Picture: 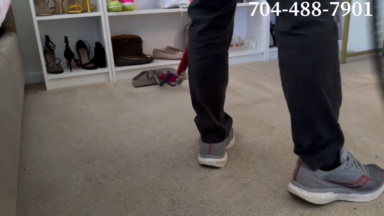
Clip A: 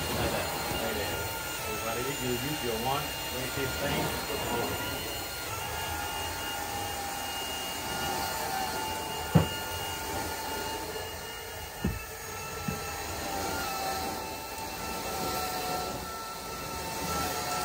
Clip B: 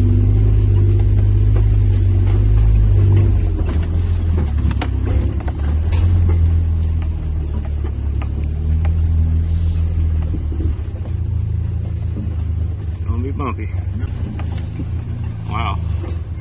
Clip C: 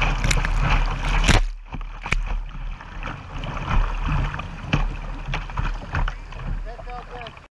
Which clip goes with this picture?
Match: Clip A